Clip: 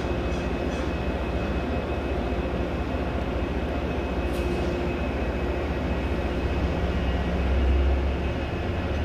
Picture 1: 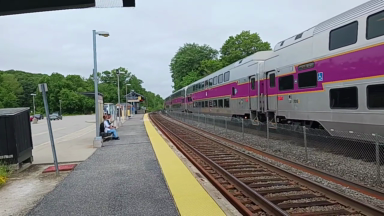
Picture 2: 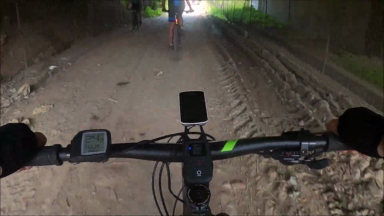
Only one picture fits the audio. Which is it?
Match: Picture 1